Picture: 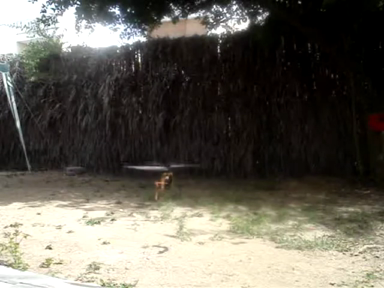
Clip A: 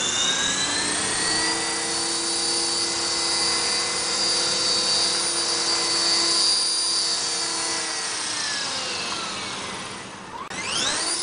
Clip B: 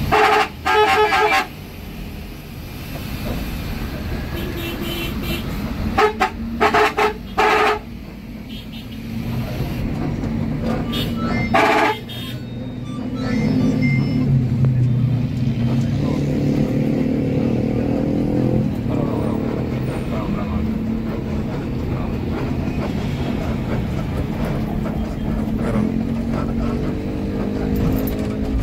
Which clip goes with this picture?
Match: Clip A